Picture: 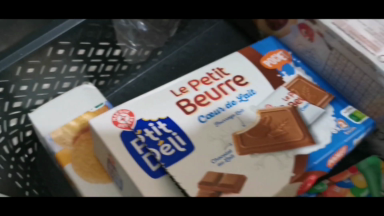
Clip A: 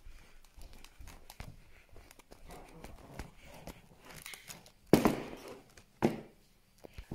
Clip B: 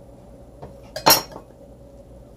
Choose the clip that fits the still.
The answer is A